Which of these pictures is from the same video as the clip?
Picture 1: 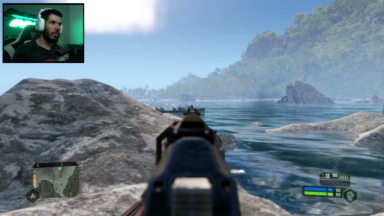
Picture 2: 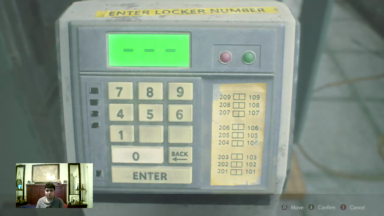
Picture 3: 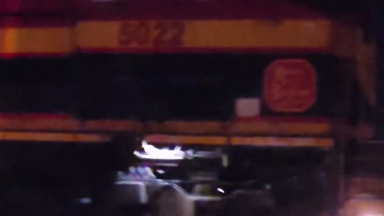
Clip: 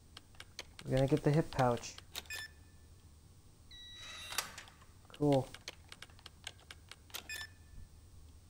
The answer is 2